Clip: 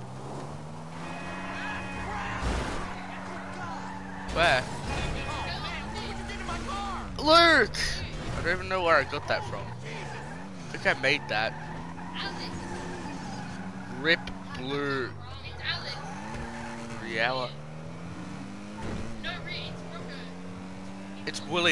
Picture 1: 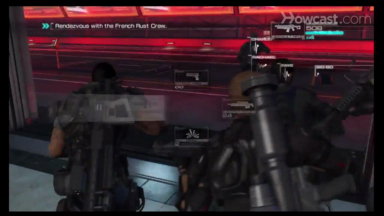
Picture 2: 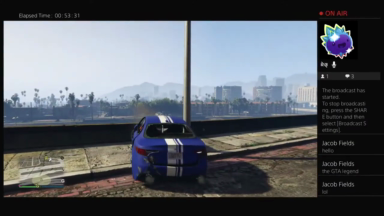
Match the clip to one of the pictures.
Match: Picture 2